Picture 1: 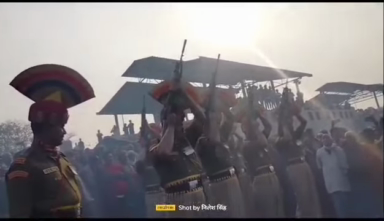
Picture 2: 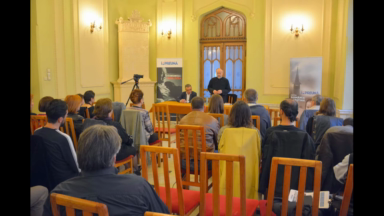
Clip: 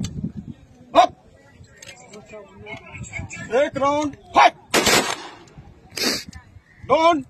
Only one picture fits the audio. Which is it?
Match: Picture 1